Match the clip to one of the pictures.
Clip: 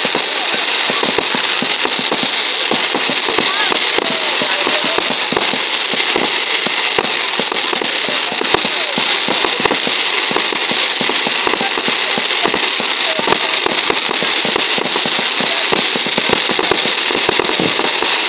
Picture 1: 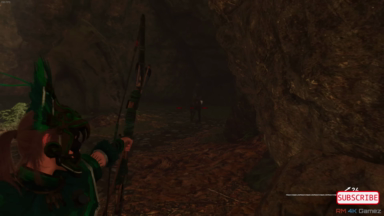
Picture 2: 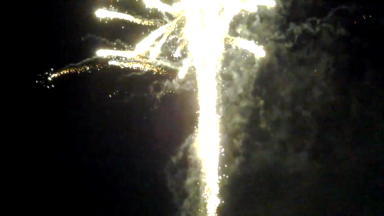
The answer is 2